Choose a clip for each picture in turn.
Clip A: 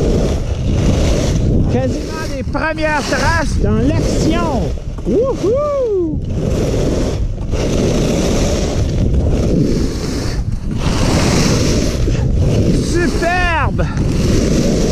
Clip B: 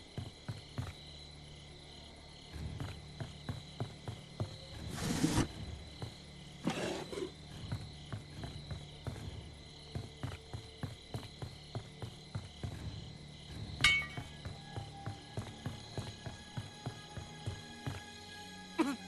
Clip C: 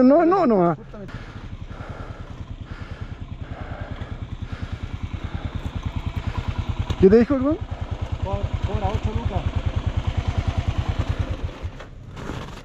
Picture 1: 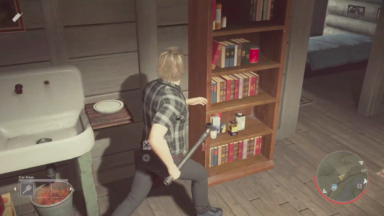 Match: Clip B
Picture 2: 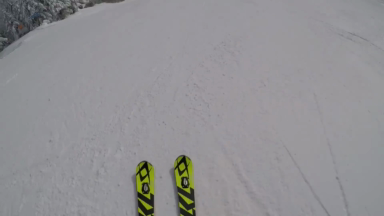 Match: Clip A